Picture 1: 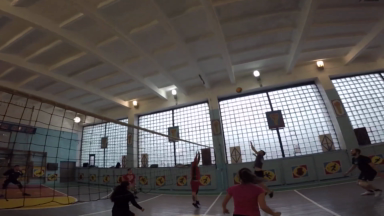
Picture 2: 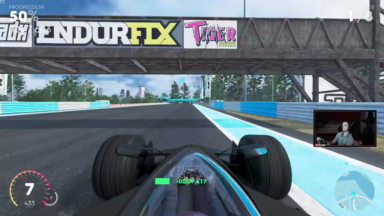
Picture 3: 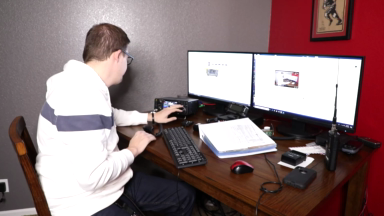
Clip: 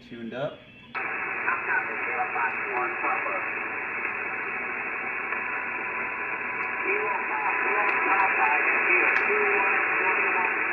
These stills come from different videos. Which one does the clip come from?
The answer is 3